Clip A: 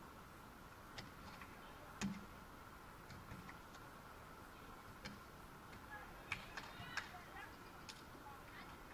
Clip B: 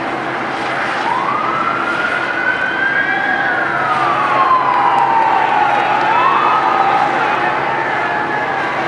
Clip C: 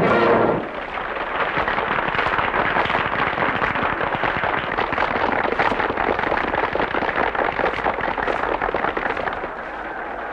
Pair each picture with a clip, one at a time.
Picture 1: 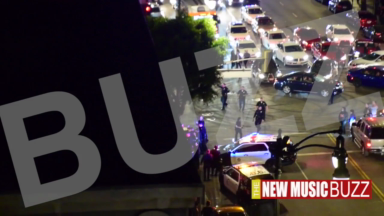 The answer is B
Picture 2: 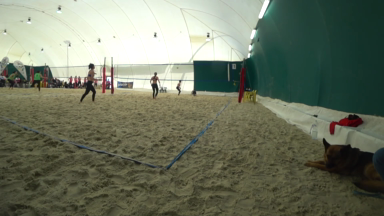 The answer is A